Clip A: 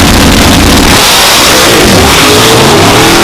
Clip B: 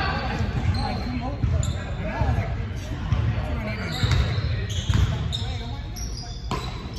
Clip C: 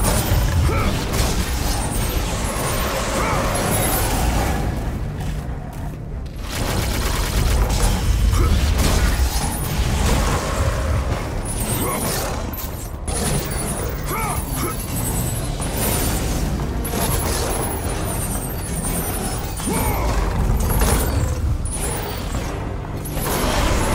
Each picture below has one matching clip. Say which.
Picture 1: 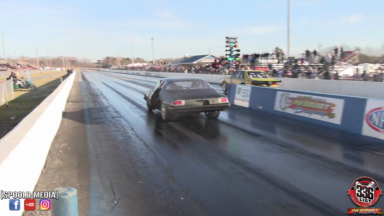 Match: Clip A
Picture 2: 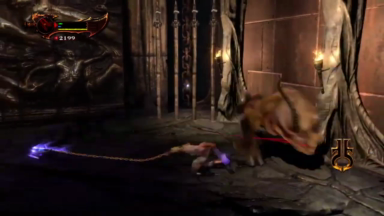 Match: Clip C